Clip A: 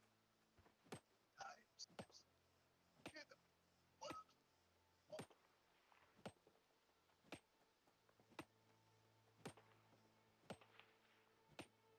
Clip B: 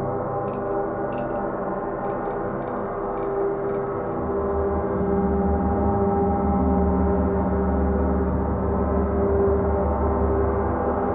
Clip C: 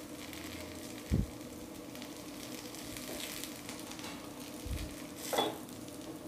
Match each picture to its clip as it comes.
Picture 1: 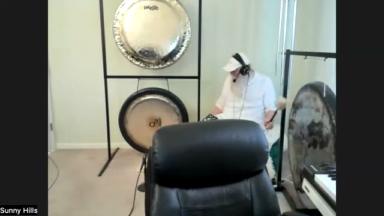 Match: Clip B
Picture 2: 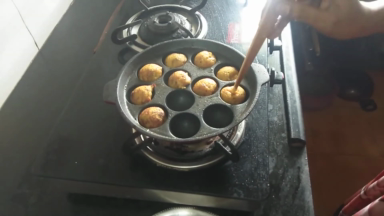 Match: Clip C